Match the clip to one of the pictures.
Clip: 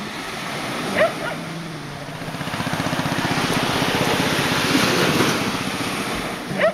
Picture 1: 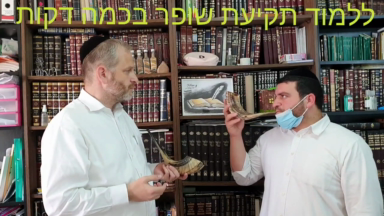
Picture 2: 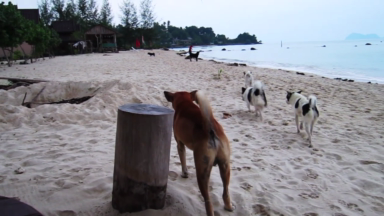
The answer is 2